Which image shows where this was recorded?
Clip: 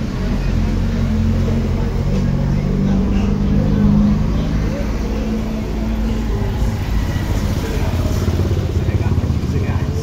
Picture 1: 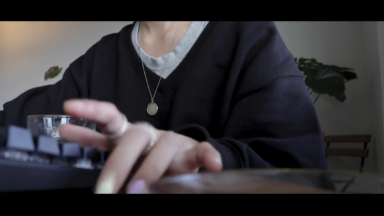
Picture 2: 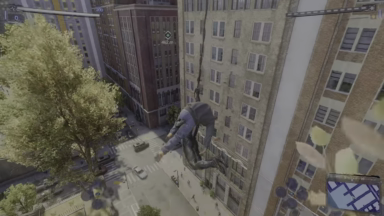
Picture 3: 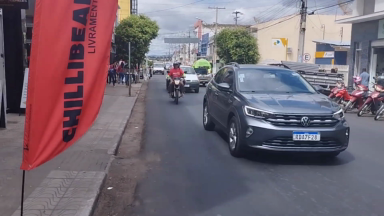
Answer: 3